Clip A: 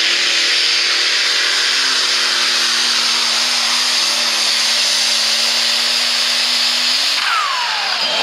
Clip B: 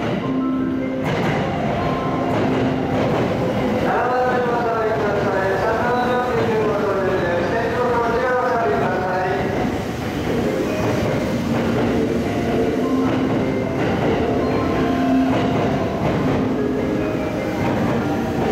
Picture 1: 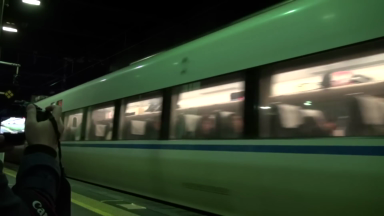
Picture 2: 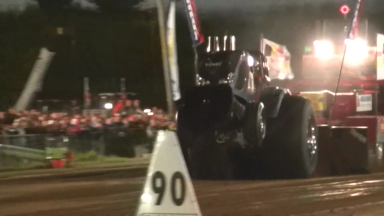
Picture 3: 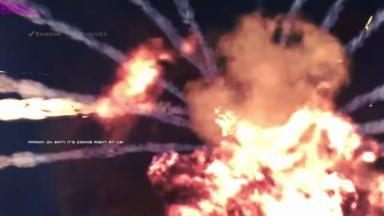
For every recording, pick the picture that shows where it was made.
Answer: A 2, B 1